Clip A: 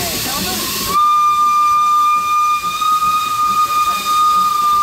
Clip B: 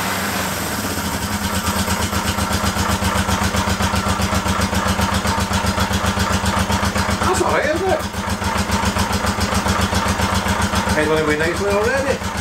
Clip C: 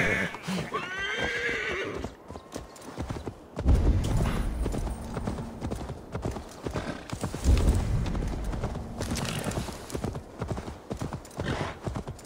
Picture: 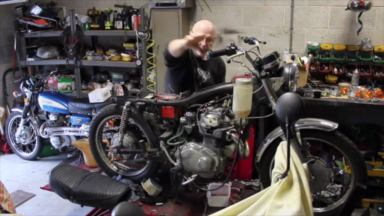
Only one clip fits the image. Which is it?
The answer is B